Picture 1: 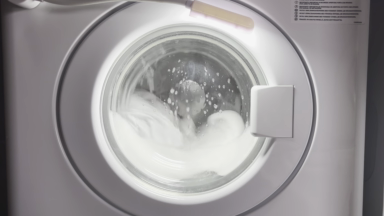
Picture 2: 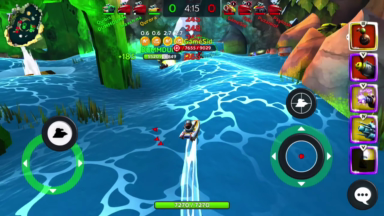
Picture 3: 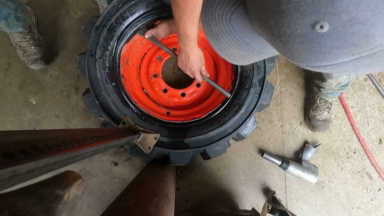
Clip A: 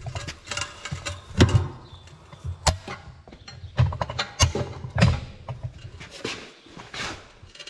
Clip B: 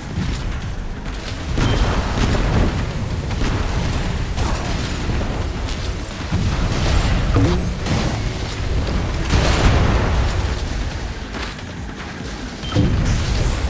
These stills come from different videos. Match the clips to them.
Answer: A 3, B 2